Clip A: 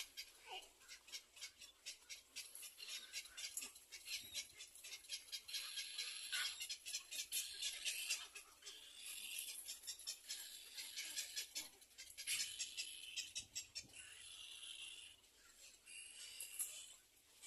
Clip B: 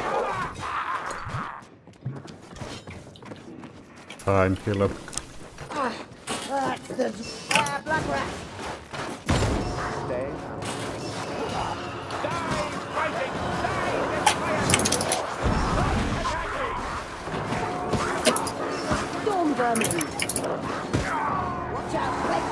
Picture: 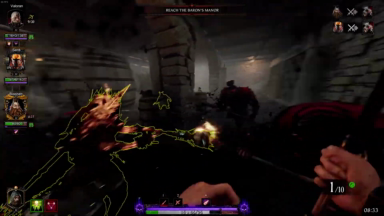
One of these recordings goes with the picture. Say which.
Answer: B